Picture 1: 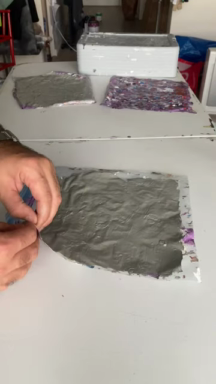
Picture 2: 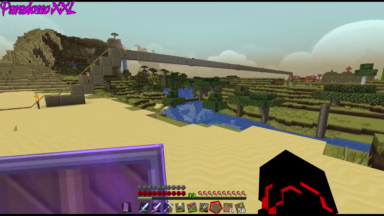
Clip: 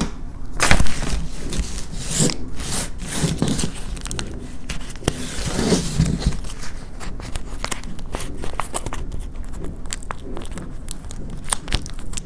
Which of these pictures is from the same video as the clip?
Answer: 1